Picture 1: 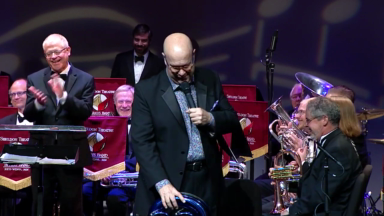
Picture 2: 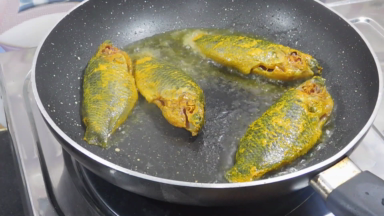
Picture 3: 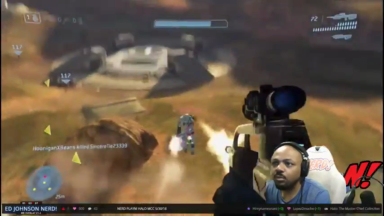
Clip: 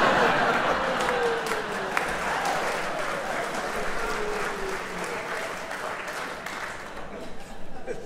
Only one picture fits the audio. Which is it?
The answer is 1